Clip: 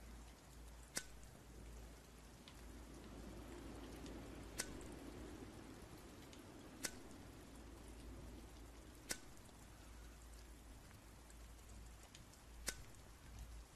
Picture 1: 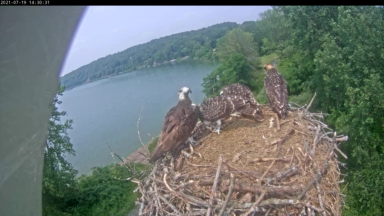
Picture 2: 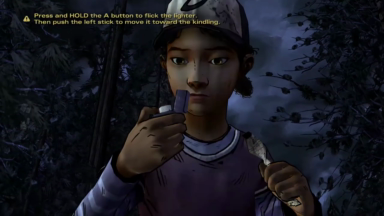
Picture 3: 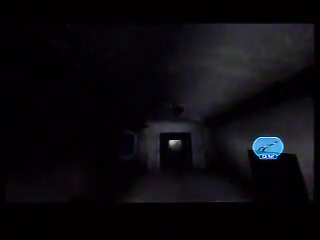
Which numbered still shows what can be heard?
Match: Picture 2